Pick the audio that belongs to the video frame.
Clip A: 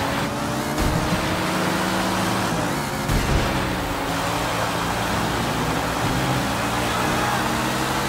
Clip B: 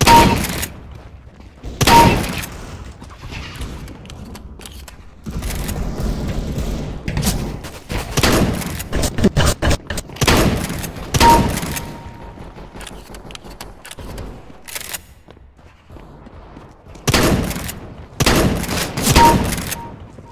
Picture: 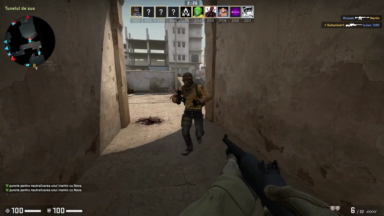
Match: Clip B